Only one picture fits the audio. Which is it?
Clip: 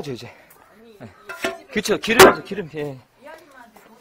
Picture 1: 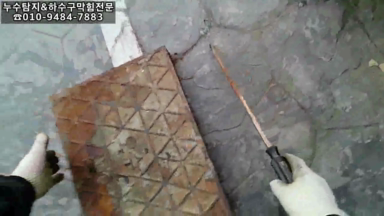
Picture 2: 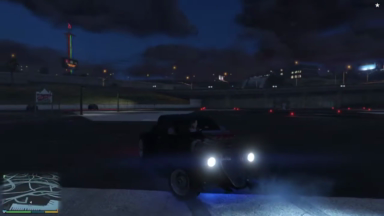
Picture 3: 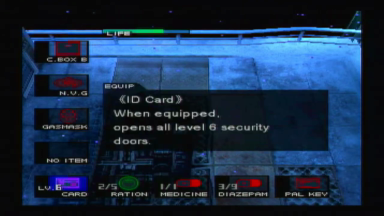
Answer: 1